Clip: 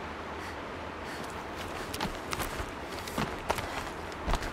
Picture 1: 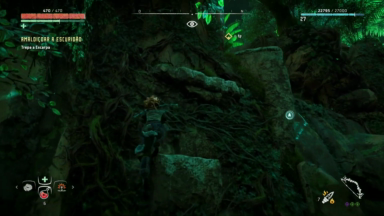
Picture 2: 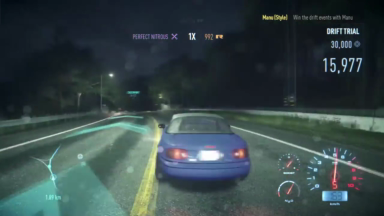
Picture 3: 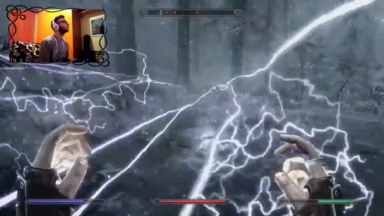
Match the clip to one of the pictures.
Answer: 1